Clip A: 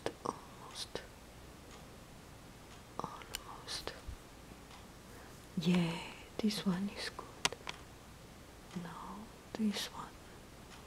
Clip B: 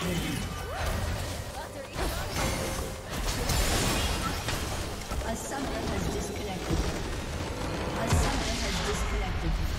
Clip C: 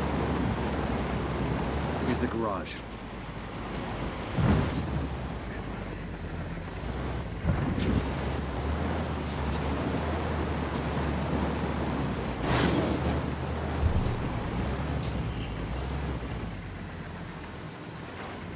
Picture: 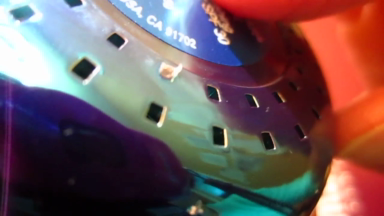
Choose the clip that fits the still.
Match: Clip A